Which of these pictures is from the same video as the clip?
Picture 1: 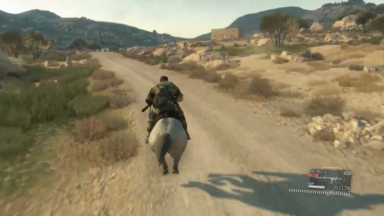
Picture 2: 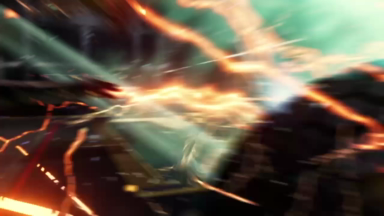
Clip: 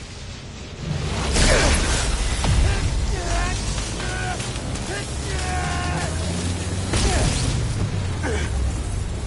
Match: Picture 2